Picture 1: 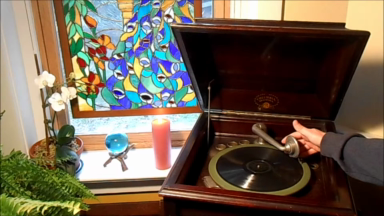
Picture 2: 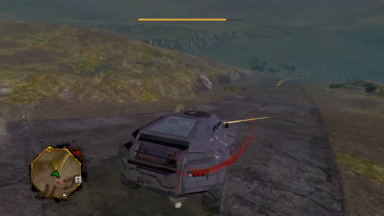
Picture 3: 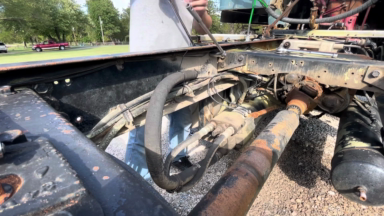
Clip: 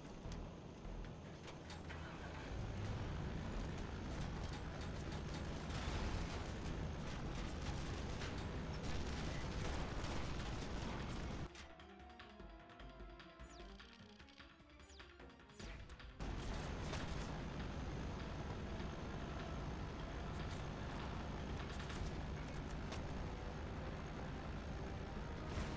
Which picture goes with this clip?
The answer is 2